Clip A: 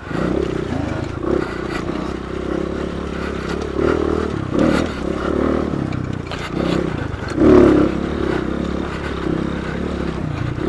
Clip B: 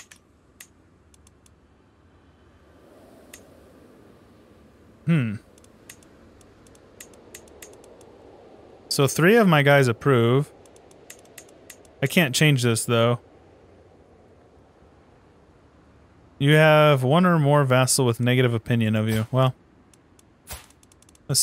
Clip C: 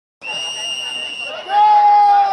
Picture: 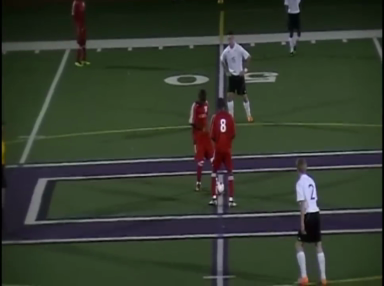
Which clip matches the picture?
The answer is C